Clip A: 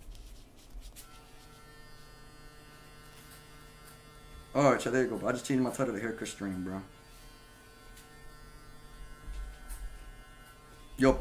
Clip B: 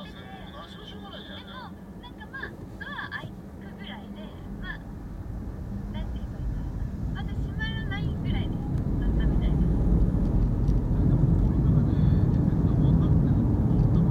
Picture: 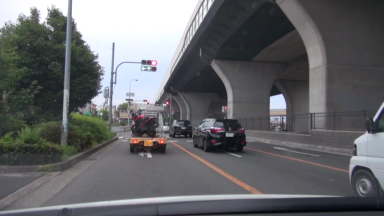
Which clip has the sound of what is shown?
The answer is B